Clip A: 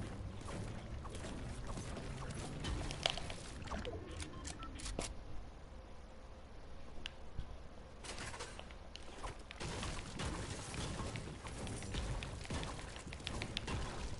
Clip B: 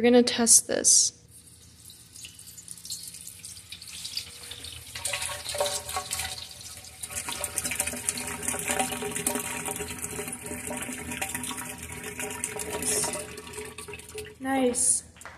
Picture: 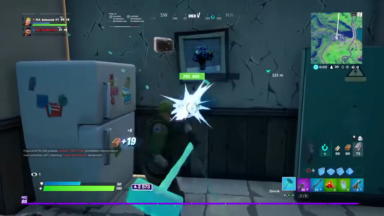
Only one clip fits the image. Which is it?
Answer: A